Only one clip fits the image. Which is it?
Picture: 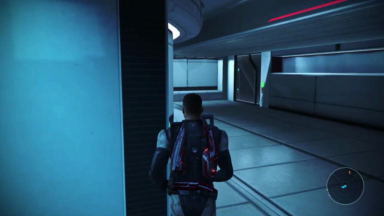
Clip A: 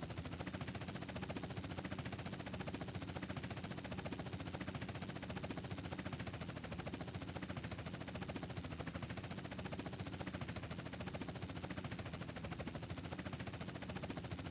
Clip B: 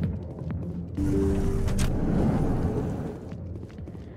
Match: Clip B